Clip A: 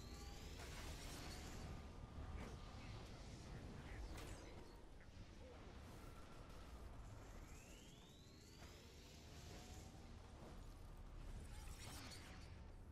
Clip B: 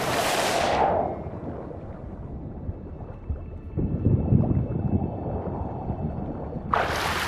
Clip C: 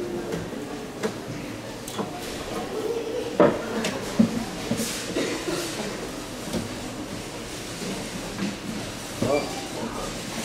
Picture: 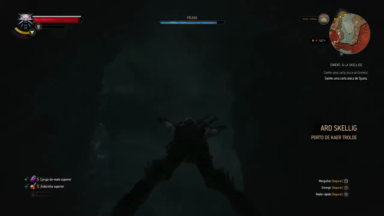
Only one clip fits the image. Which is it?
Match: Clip B